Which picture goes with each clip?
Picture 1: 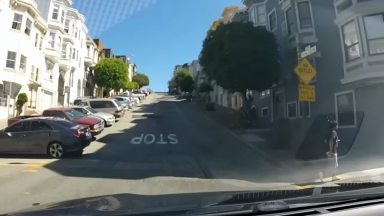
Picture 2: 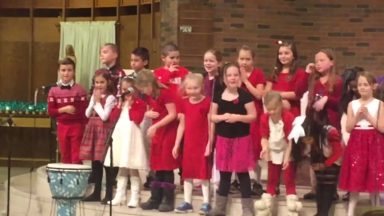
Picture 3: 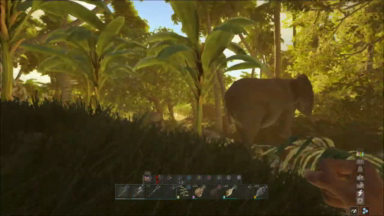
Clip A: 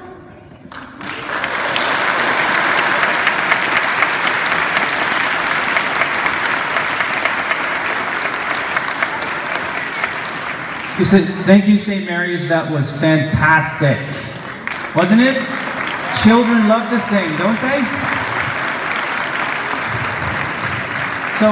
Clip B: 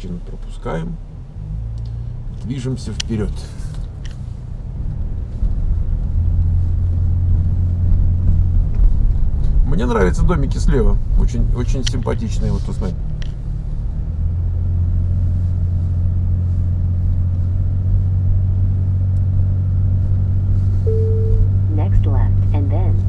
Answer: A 2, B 1